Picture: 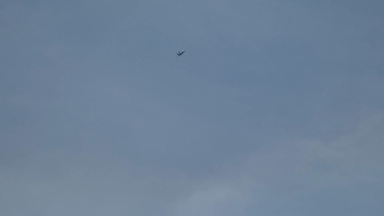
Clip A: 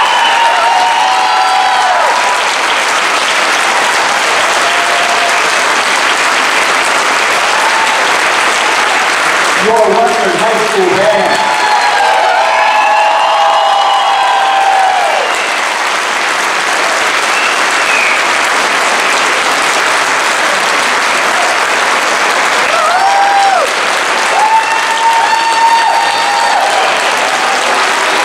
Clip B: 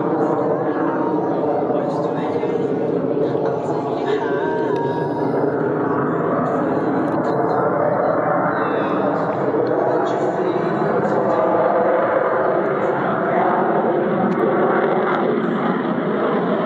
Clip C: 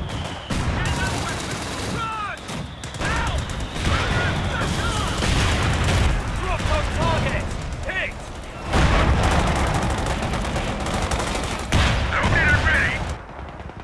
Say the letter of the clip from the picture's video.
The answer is B